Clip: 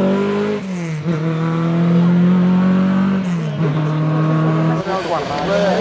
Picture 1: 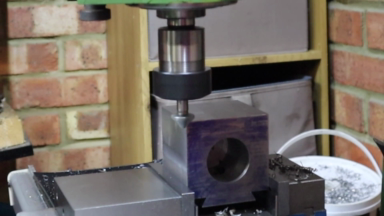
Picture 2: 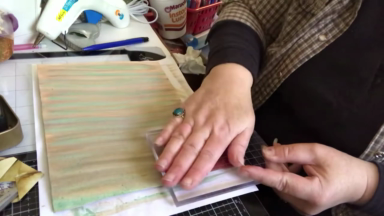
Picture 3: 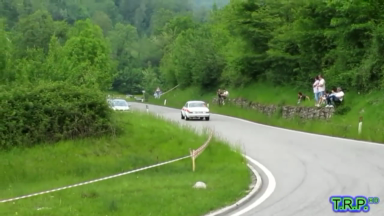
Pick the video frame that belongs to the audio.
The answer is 3